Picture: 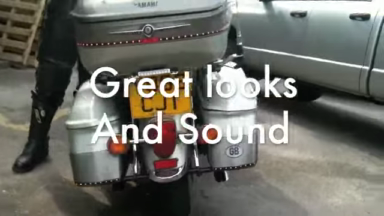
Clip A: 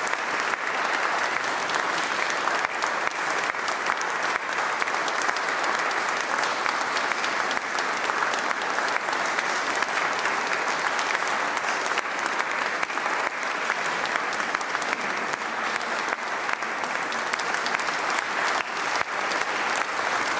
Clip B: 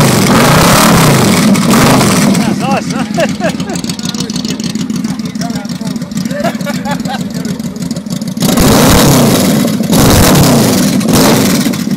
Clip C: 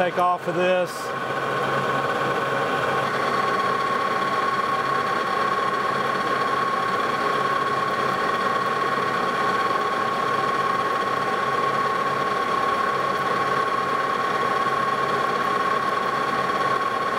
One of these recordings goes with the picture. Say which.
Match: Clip B